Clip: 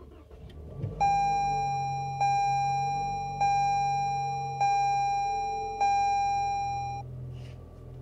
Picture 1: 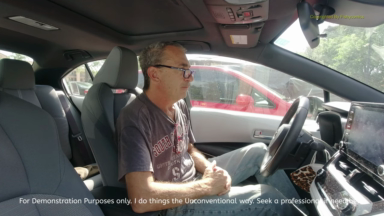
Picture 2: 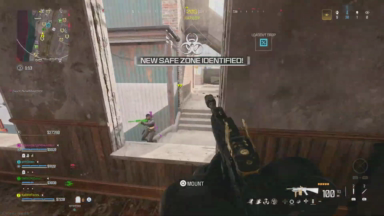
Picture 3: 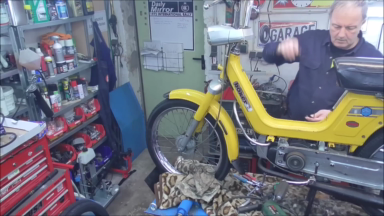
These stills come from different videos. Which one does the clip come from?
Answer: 1